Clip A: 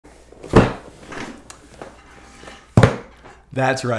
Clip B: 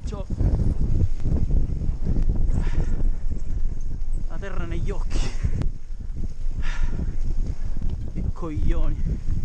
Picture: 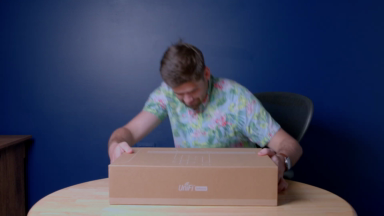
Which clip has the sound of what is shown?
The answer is A